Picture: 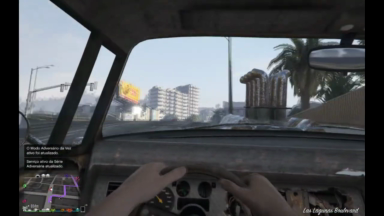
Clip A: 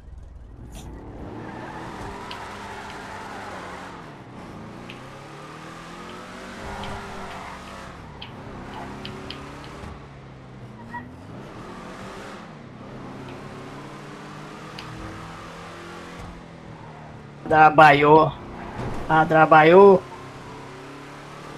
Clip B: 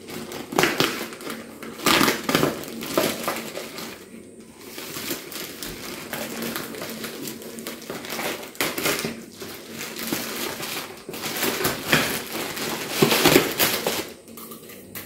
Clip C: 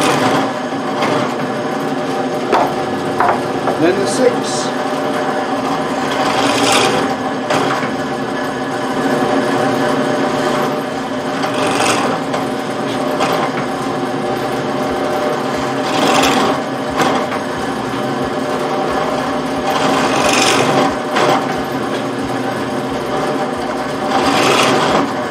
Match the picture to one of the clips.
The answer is A